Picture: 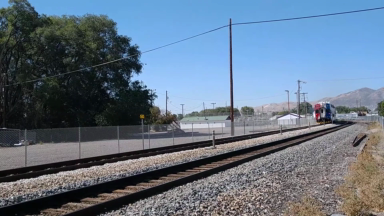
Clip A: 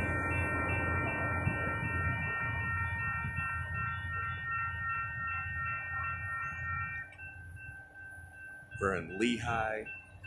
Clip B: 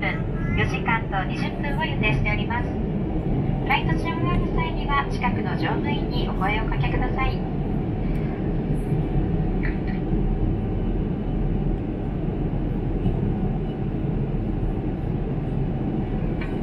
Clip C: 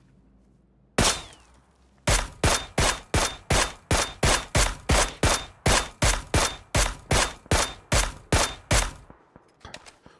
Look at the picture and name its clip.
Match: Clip A